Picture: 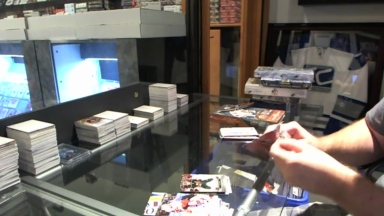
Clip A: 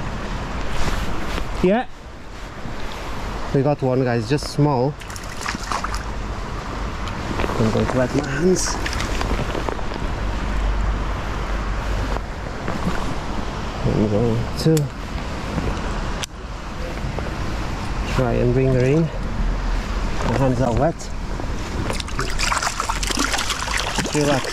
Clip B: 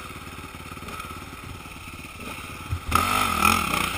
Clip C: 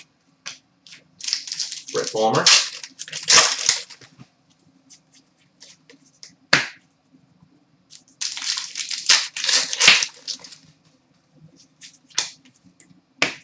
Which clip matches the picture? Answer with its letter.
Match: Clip C